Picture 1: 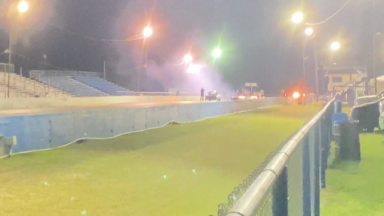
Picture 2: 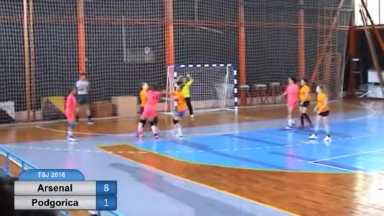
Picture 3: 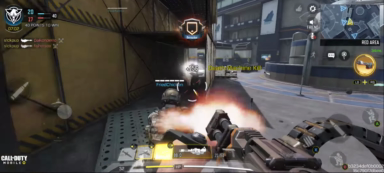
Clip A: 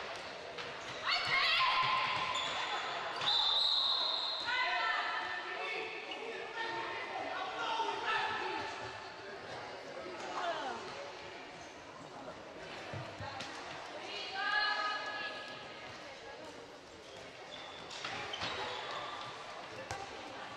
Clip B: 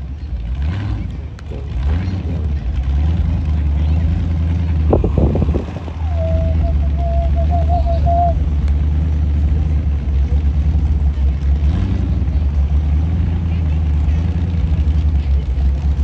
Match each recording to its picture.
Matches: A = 2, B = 1